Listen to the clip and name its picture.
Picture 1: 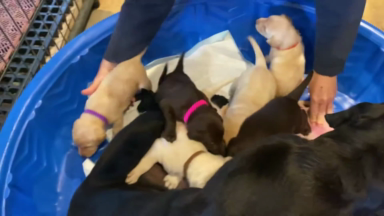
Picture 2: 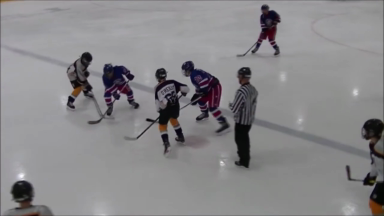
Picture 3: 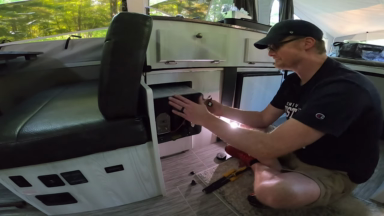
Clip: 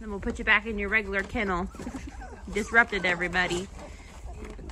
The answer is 1